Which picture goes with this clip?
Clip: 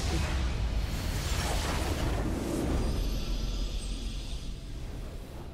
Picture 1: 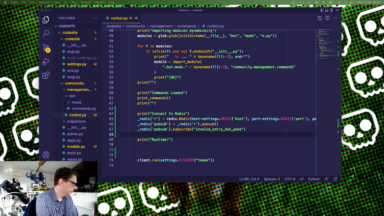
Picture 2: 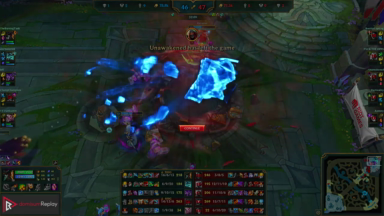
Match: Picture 2